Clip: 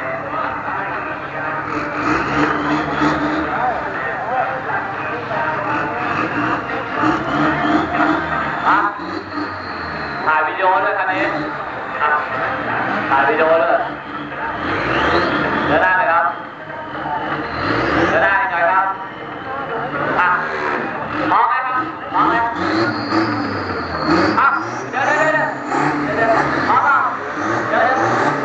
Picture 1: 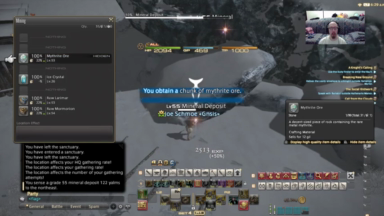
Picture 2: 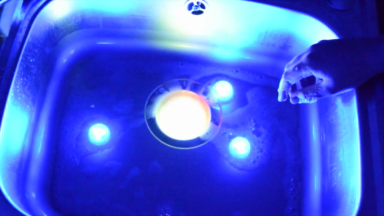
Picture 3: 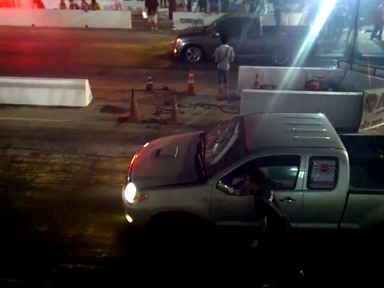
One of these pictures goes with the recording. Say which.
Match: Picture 3